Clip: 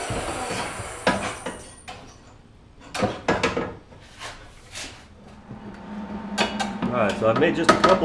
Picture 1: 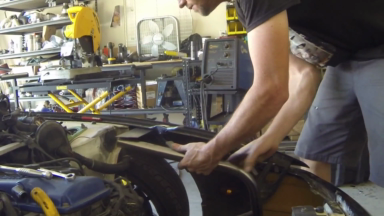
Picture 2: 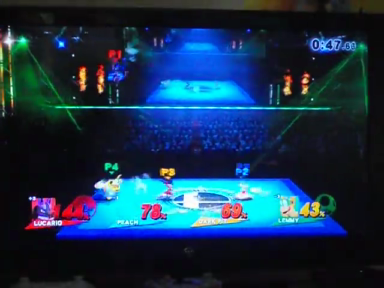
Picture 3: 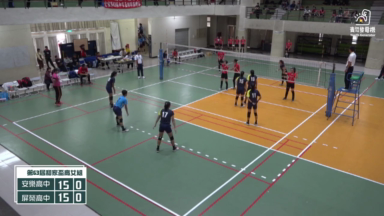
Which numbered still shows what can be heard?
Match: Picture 1